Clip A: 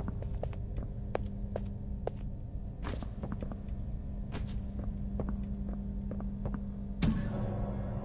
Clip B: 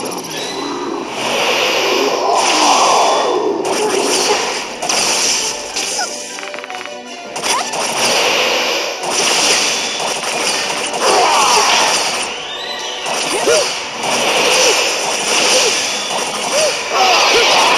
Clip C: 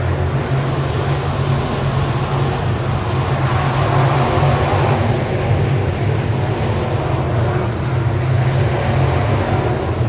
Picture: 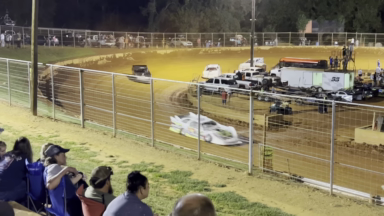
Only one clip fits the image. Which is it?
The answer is C